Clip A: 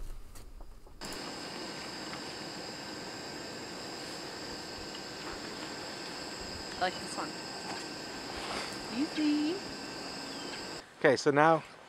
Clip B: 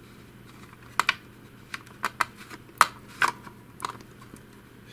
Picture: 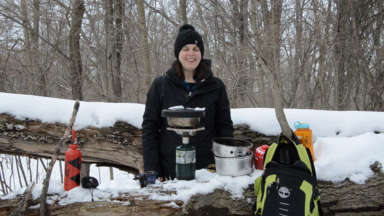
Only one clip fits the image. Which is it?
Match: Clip A